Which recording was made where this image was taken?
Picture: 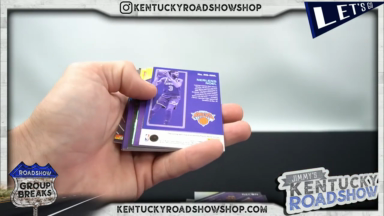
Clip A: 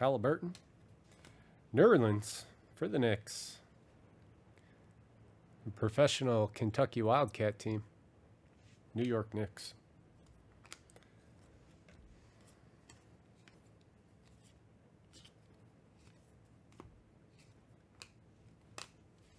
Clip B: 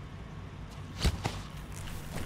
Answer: A